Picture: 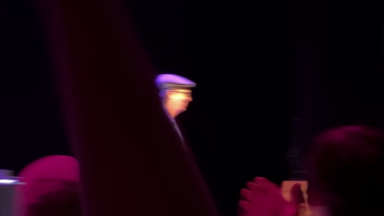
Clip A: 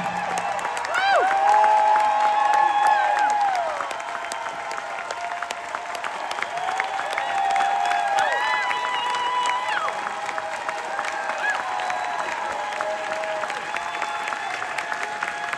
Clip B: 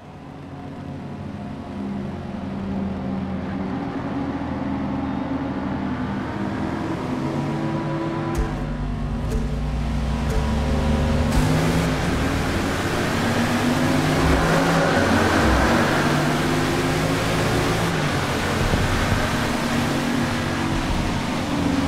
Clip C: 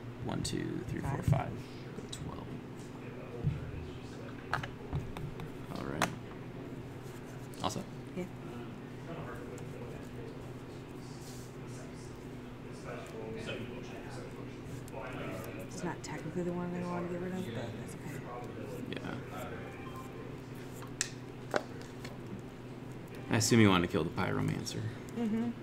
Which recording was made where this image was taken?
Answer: A